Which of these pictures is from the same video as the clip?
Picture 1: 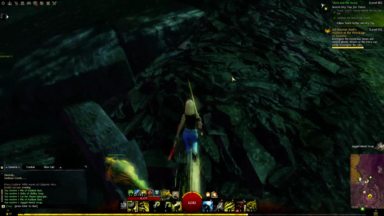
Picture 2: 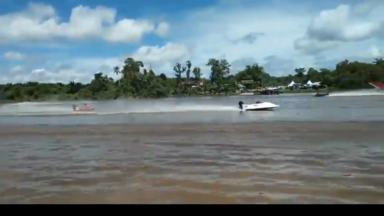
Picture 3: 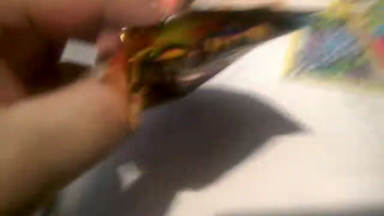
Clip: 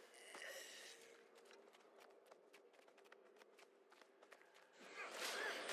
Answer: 1